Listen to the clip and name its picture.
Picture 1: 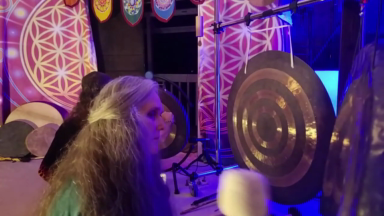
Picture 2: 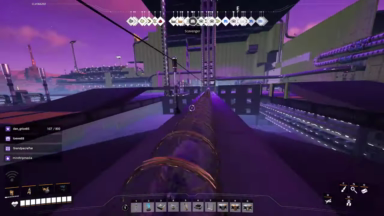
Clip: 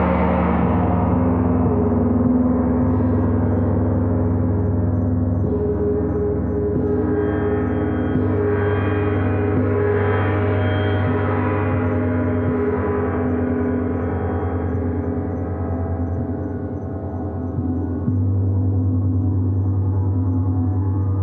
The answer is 1